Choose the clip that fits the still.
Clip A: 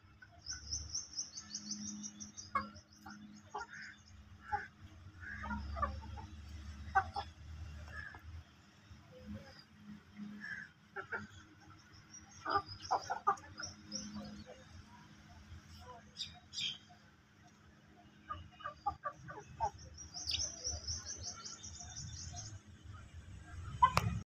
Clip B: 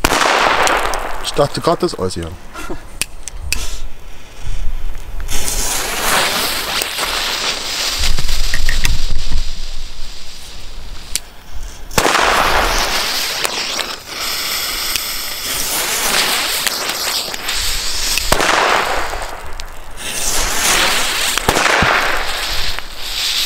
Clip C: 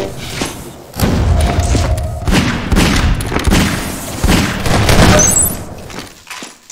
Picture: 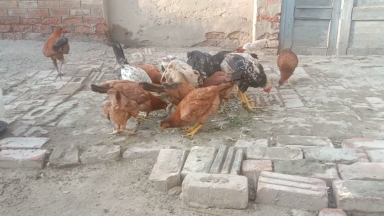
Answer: A